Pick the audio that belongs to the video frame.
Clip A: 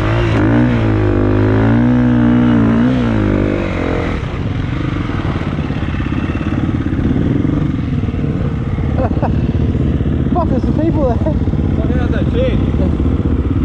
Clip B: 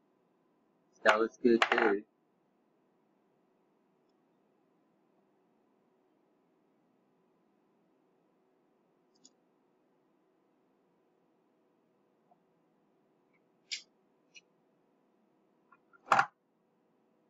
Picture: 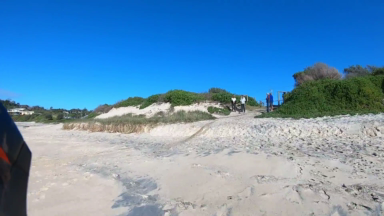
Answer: A